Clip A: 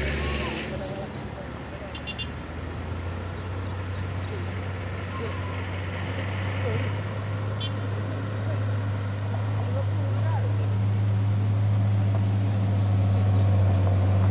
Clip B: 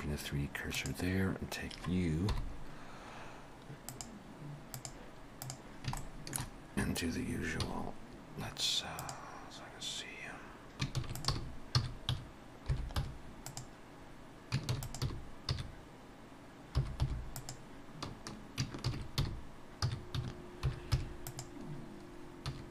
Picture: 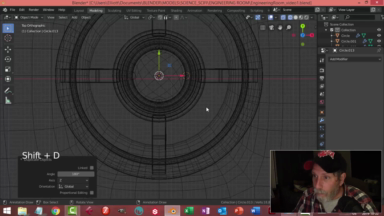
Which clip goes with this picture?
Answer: B